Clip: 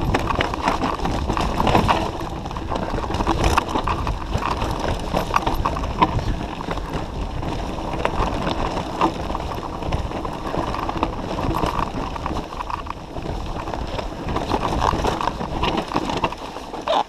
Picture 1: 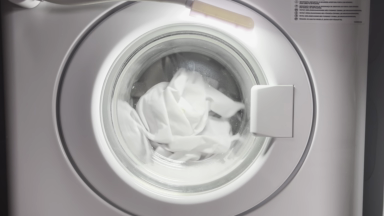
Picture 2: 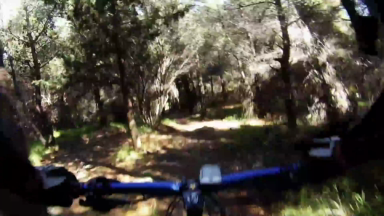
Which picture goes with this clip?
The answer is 2